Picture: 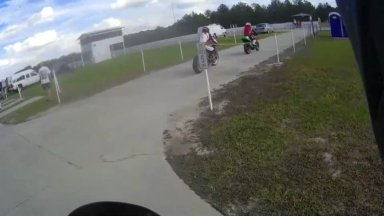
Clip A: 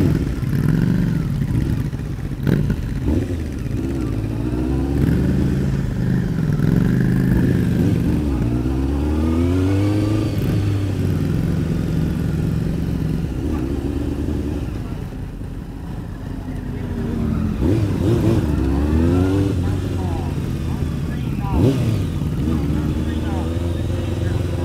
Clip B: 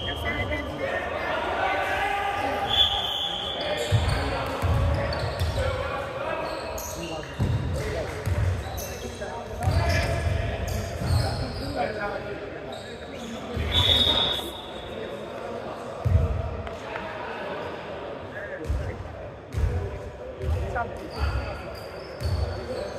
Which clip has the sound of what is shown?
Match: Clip A